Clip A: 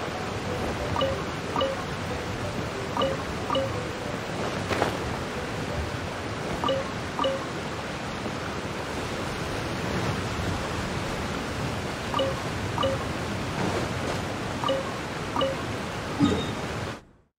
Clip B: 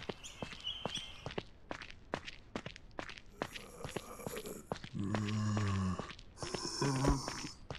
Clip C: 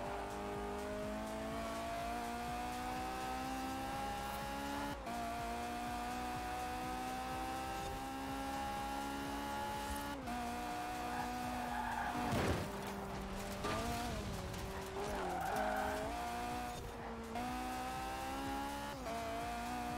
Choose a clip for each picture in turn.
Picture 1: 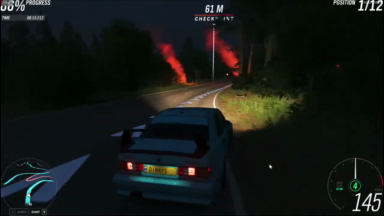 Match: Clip C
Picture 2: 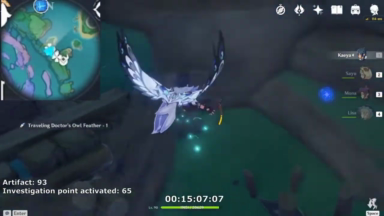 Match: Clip A